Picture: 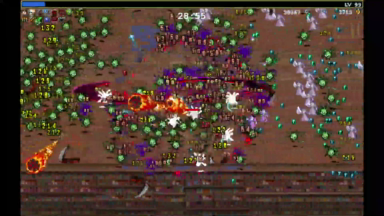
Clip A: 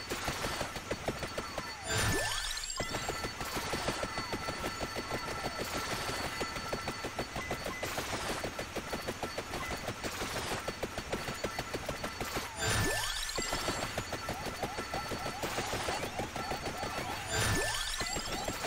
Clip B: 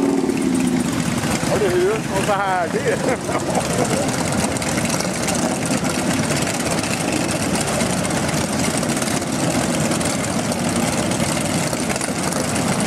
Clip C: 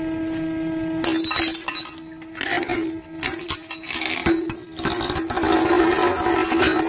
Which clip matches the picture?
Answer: A